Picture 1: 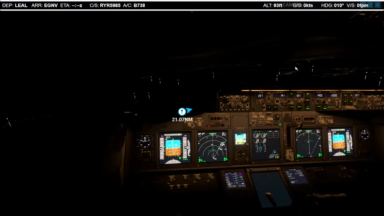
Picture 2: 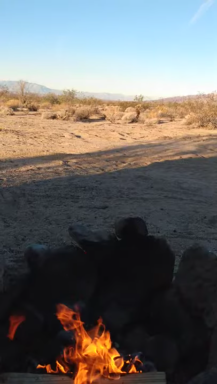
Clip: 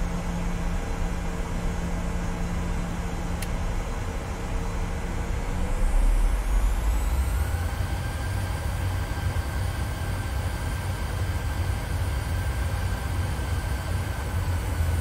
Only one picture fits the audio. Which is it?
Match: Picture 1